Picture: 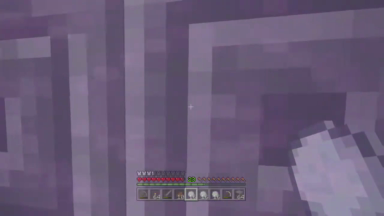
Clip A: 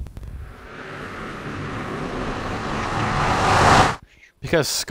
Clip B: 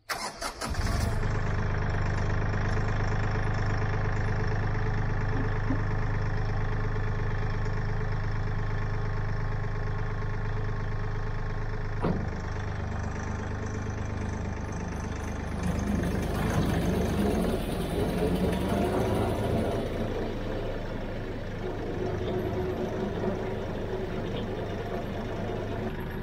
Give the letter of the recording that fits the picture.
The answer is A